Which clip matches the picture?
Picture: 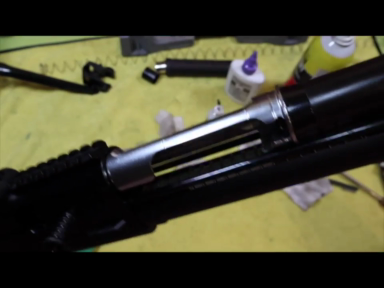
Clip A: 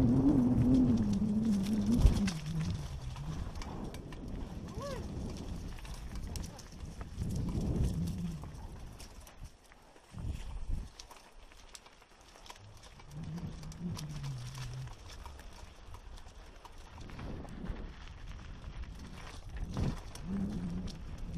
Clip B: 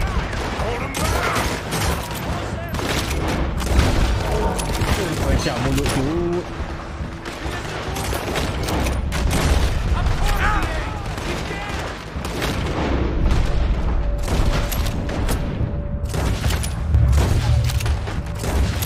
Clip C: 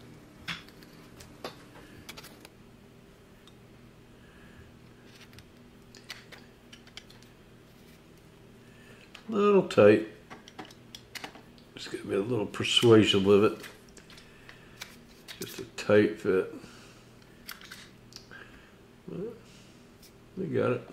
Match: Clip C